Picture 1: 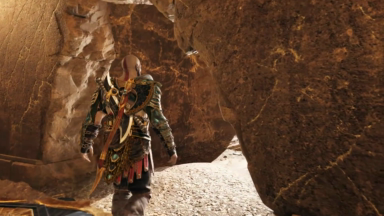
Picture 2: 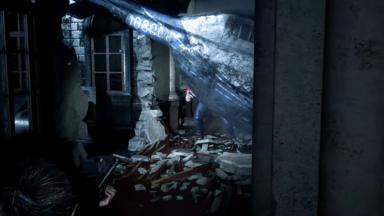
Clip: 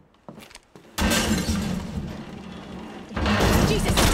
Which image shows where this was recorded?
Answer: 2